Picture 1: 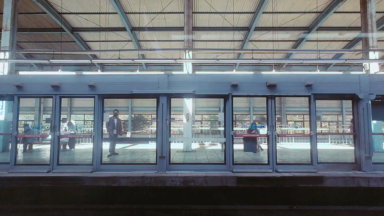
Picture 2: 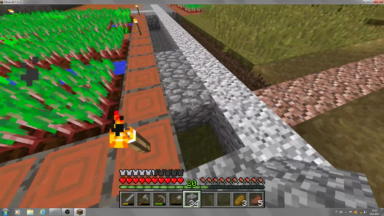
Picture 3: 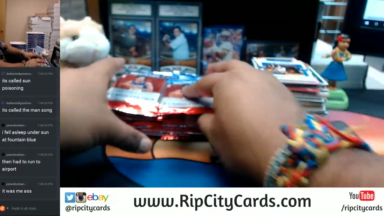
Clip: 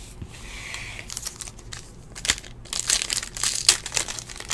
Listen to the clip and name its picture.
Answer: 3